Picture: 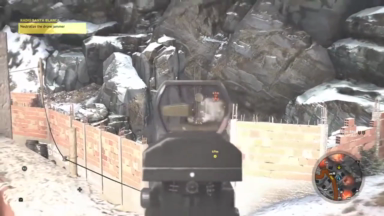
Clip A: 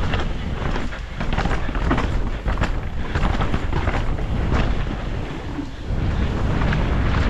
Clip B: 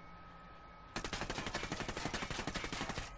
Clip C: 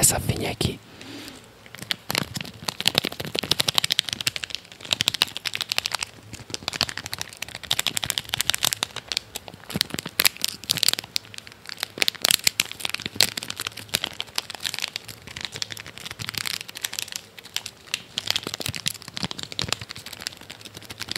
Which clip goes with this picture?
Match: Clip B